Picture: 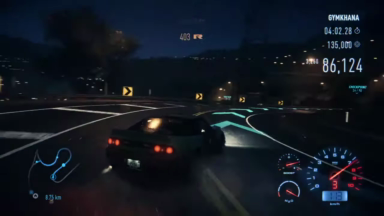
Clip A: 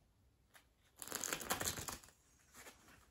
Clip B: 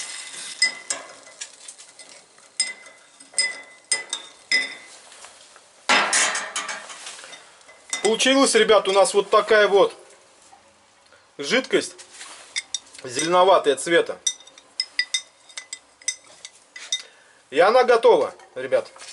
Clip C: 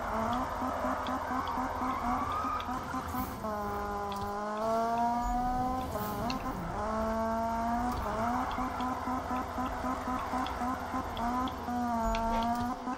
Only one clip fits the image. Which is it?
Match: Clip C